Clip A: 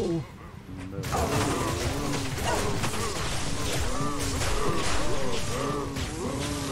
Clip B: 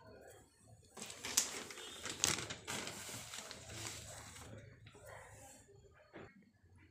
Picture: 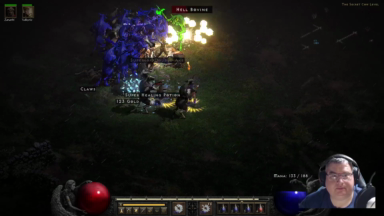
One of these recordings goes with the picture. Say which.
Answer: A